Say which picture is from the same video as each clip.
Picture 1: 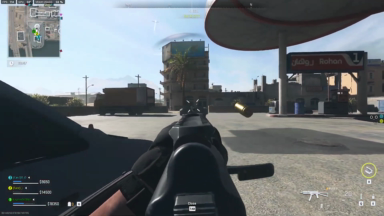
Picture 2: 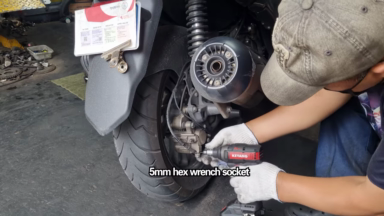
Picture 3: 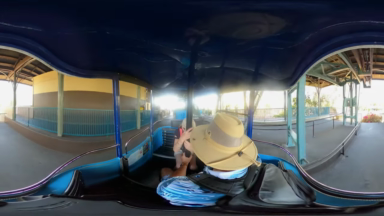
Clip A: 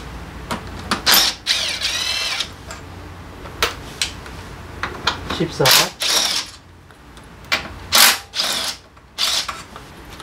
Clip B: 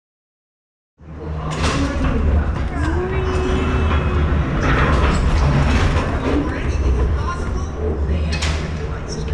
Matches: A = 2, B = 3